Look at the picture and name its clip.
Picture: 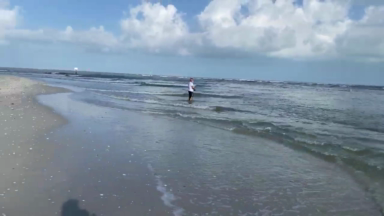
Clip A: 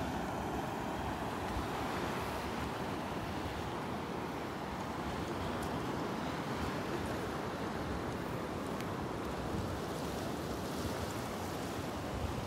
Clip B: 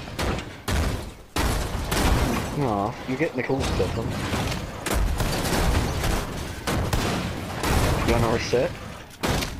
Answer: A